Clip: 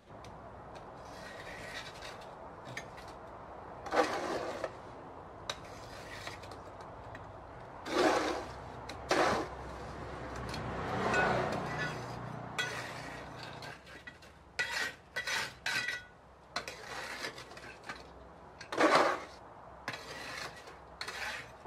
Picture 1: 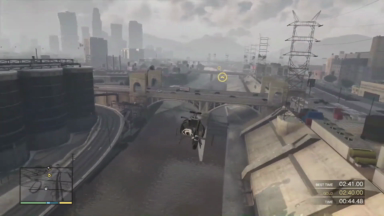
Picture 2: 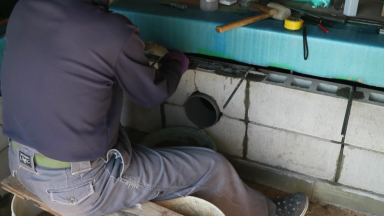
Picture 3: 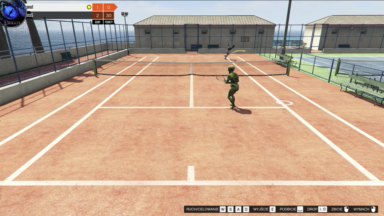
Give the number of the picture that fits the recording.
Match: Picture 2